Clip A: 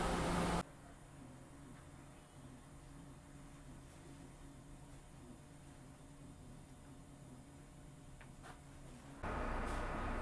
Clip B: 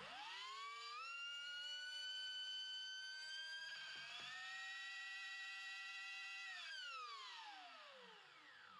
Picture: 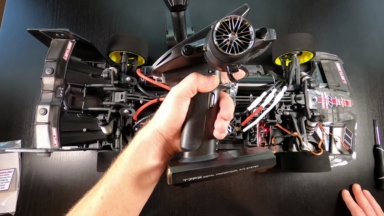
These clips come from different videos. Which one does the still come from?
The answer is B